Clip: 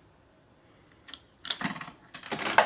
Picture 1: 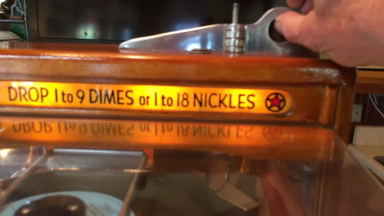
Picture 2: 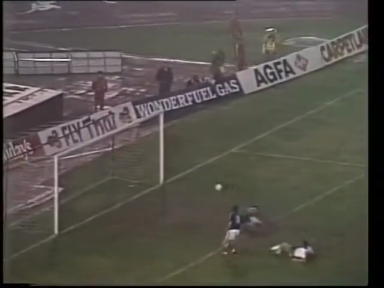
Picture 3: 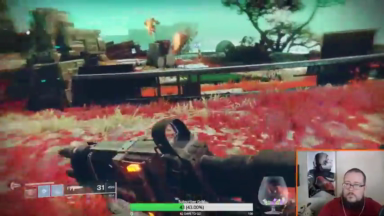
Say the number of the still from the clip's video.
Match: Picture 1